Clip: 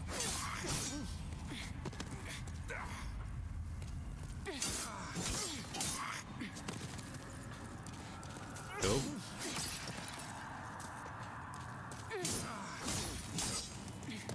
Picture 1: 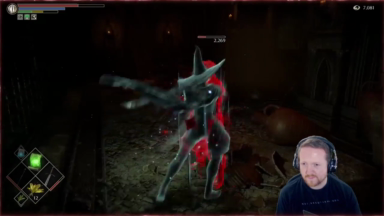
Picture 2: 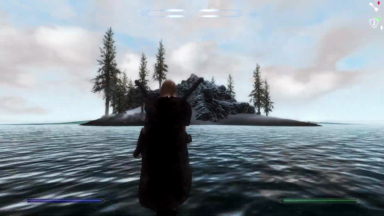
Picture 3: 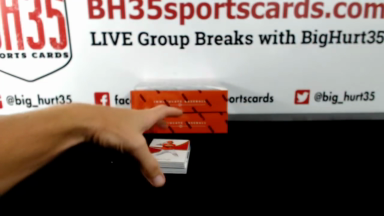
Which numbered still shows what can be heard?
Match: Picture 1